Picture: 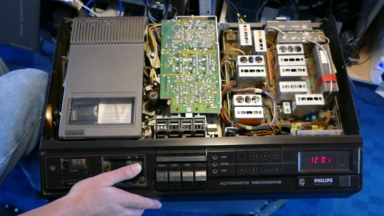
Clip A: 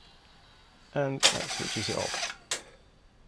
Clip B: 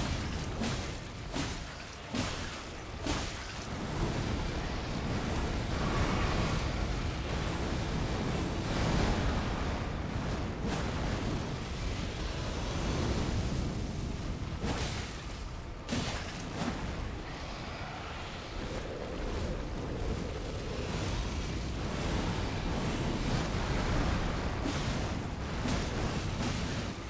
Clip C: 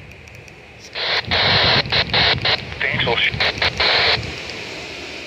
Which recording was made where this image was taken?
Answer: A